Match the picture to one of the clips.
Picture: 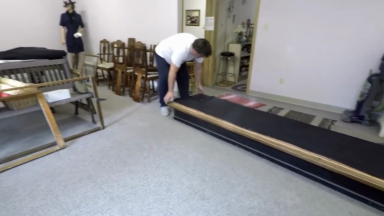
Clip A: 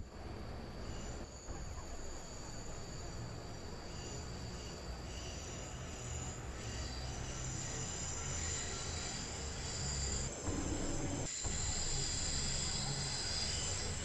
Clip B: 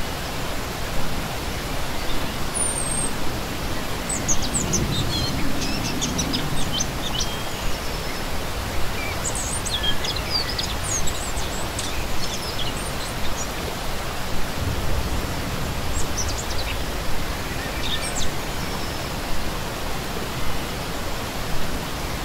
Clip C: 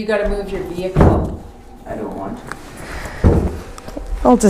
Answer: C